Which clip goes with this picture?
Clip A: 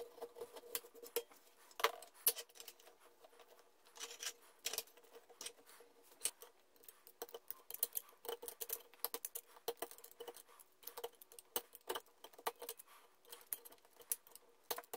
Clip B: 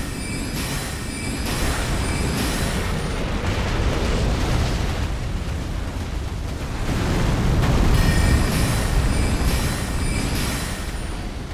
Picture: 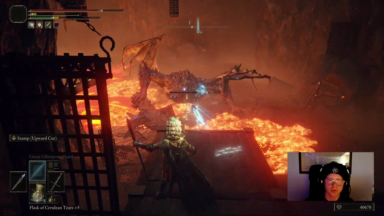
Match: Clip B